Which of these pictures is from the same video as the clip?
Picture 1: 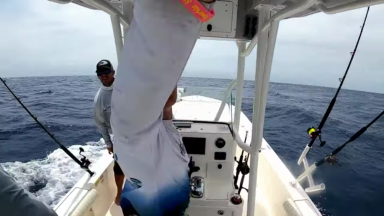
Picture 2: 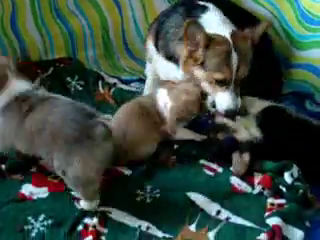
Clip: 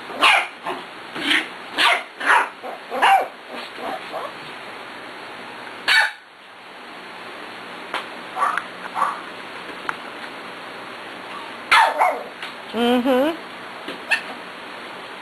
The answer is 2